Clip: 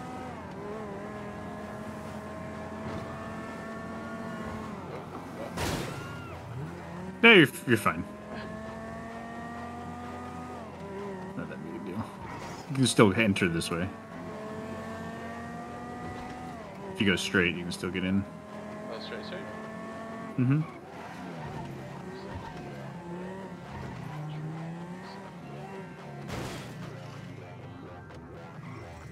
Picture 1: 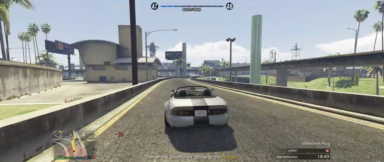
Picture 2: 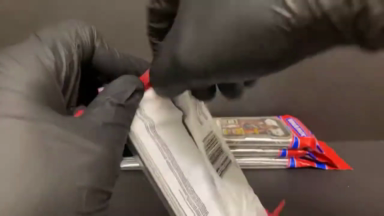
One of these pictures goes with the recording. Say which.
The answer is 1